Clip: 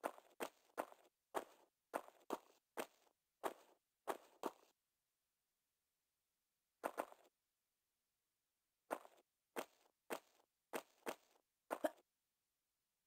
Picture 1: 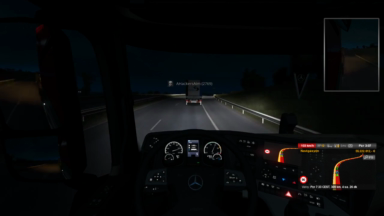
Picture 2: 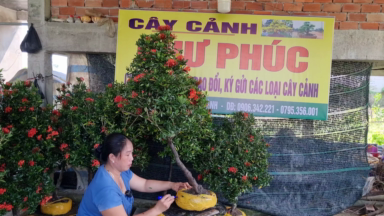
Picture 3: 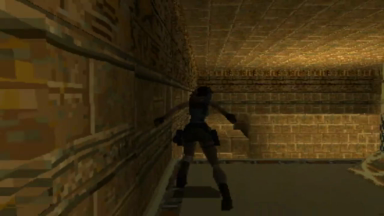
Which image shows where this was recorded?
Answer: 3